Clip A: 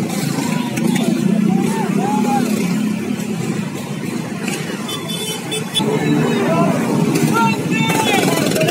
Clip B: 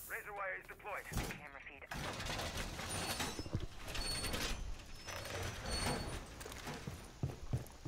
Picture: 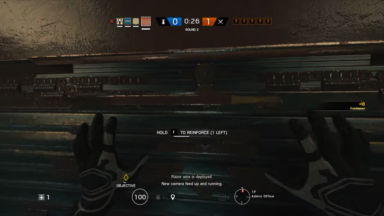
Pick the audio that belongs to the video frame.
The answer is B